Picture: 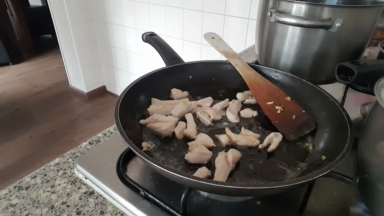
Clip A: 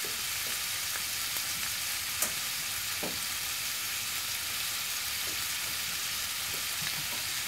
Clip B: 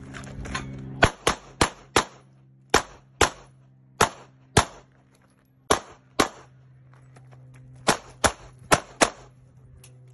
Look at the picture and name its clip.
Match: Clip A